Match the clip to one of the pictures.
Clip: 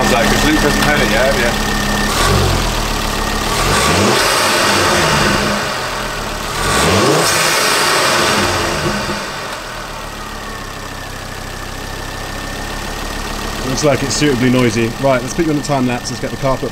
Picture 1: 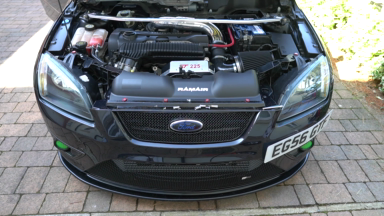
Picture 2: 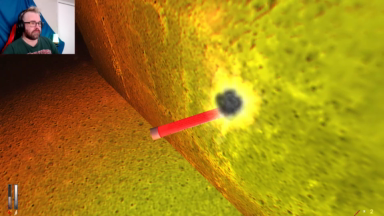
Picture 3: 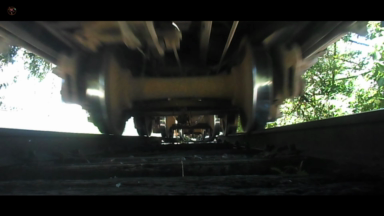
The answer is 1